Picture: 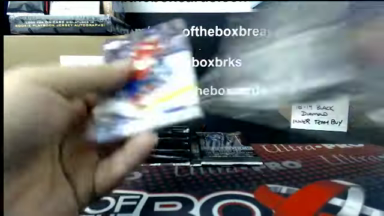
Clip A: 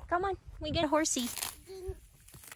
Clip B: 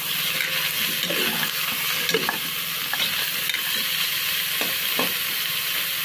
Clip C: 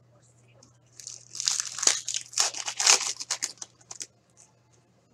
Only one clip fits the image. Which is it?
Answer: C